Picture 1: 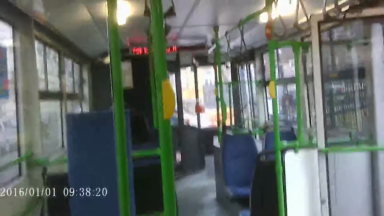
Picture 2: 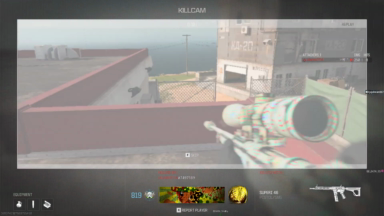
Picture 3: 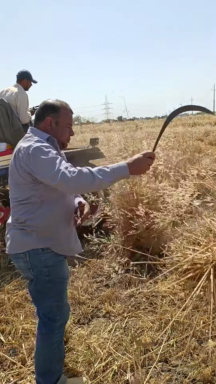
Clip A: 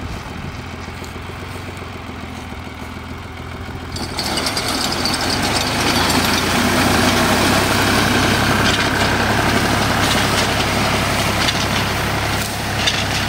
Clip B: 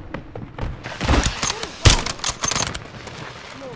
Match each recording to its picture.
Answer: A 3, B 2